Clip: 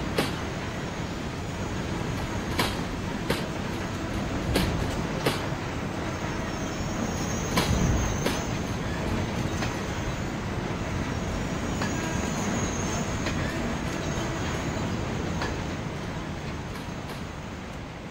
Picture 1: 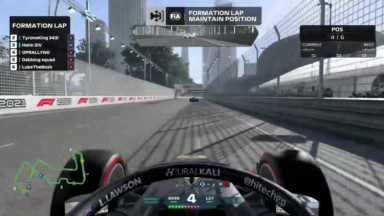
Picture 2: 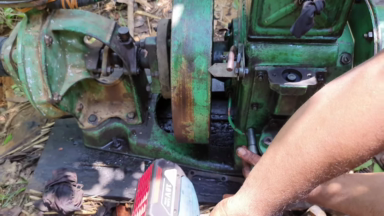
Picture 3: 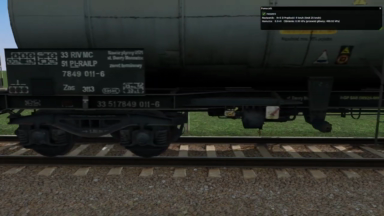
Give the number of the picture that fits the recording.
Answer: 3